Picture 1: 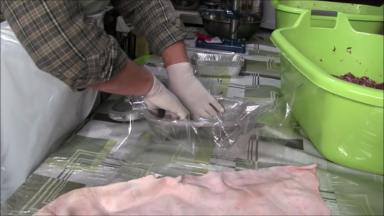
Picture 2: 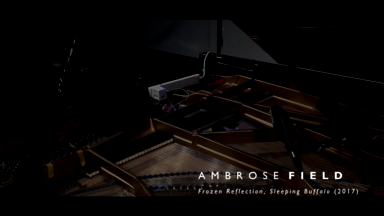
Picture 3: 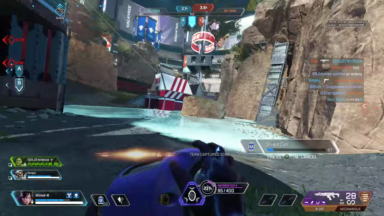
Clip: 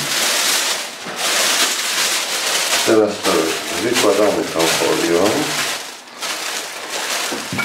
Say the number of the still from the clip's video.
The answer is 1